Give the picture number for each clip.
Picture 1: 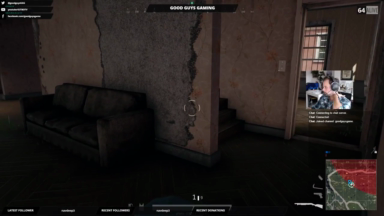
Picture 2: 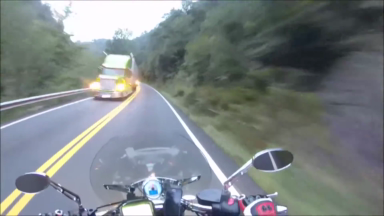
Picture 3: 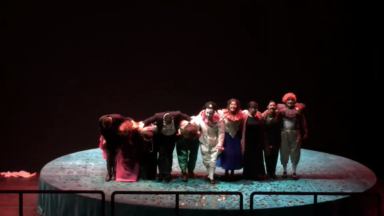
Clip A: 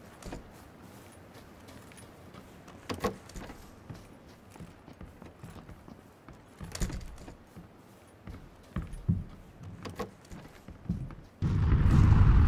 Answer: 1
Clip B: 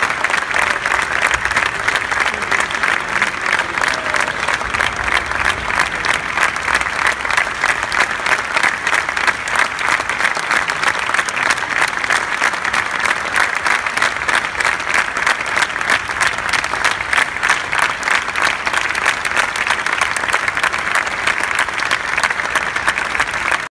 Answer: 3